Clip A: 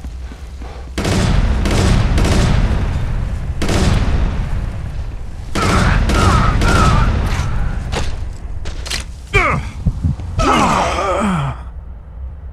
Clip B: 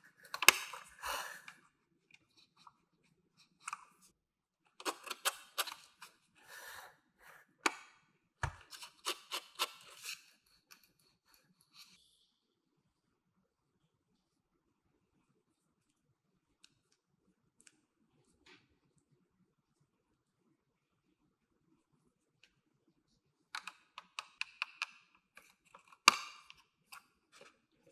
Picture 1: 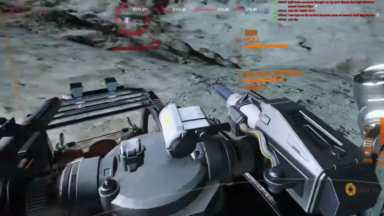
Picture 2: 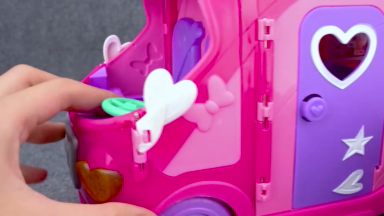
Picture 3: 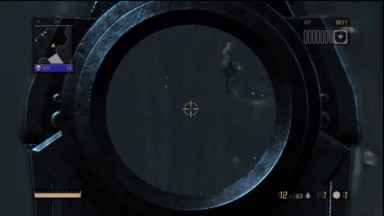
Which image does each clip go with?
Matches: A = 3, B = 2